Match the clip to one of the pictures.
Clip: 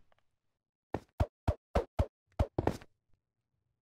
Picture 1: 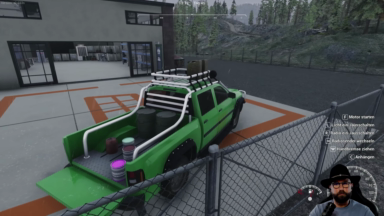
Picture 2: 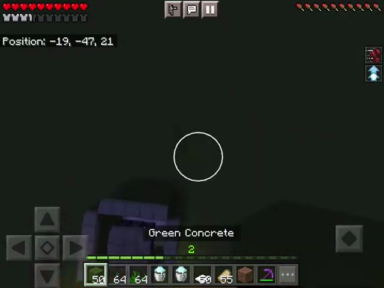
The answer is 2